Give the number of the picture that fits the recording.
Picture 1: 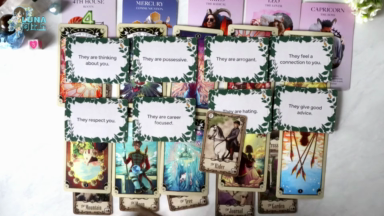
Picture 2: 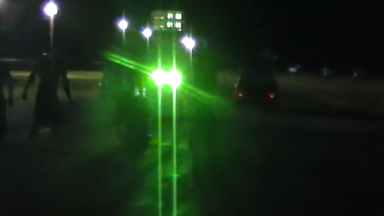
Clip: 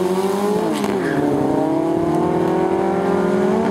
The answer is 2